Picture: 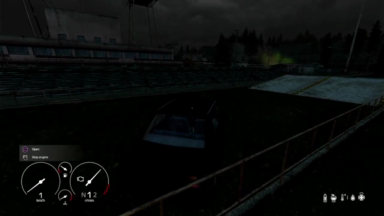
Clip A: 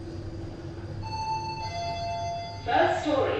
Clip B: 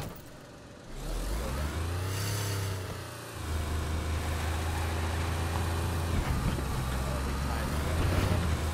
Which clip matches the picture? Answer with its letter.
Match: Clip B